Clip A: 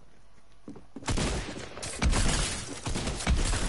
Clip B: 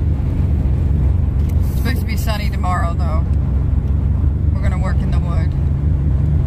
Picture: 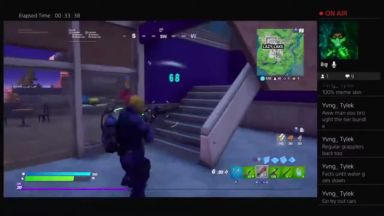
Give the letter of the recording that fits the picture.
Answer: A